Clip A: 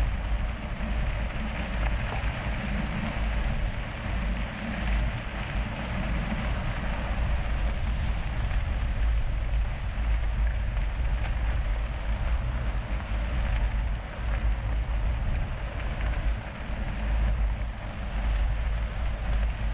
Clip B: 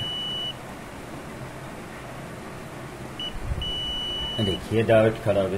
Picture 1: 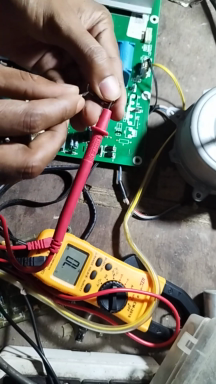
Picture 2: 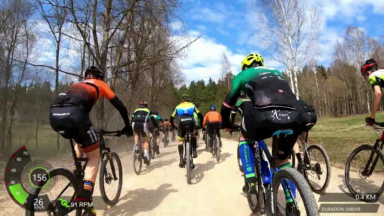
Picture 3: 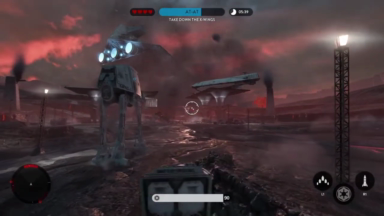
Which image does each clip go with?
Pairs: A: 2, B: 1